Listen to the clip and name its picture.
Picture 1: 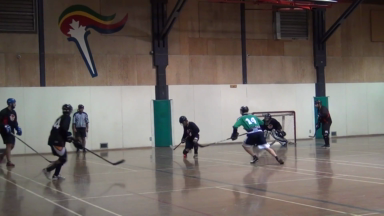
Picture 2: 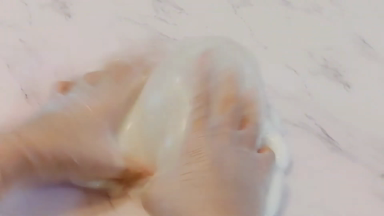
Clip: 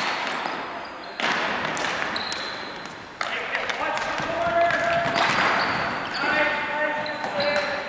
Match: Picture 1